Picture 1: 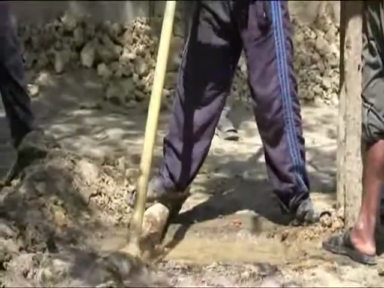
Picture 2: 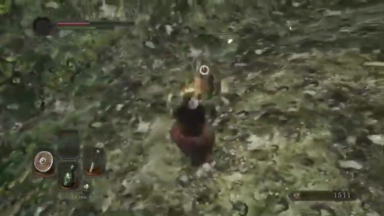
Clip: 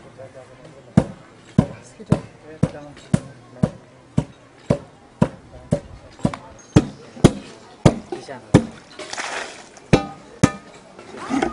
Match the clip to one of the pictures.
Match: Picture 1